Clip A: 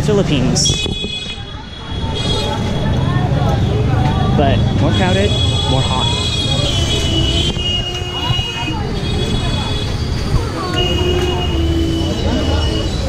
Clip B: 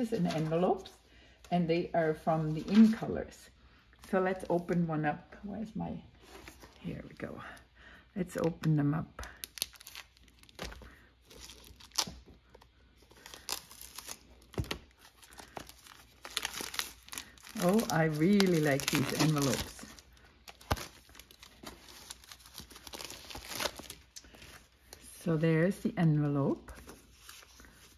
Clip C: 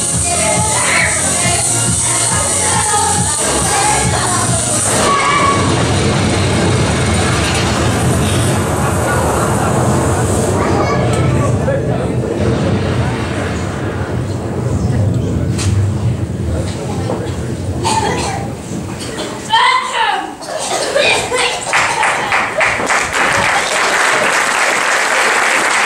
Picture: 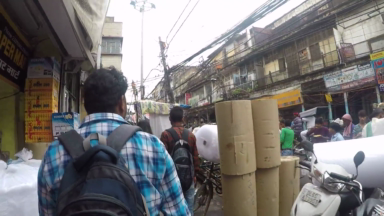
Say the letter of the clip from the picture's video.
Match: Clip A